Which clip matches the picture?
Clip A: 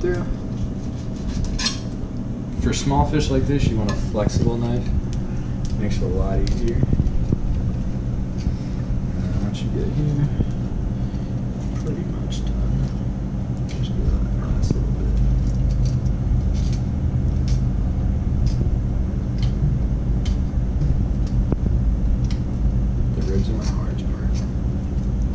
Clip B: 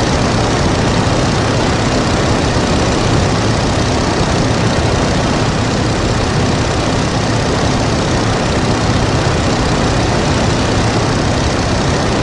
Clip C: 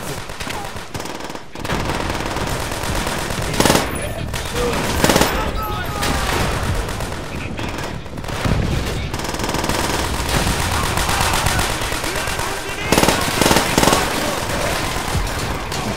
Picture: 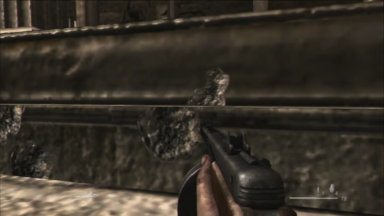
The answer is C